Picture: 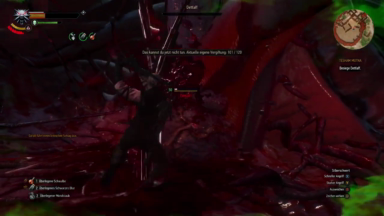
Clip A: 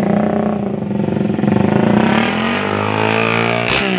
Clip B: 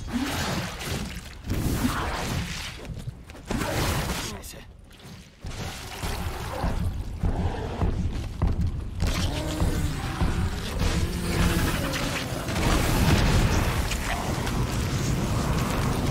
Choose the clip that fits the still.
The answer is B